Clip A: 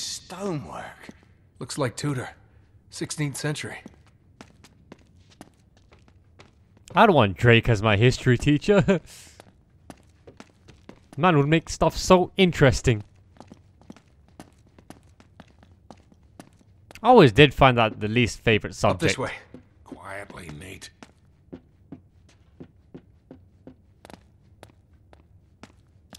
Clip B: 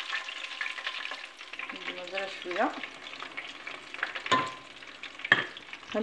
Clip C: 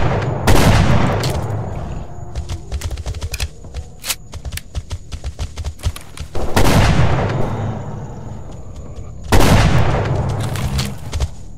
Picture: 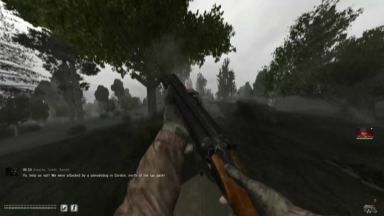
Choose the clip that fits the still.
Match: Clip C